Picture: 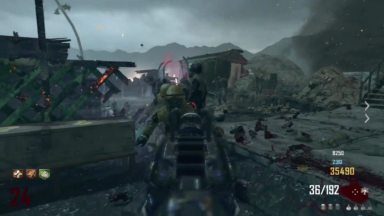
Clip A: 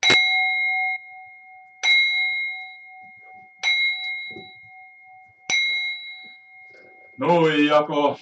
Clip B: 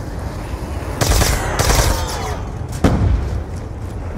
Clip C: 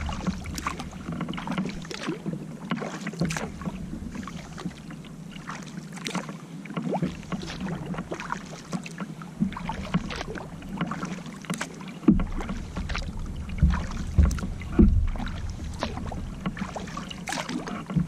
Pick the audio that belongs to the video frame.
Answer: B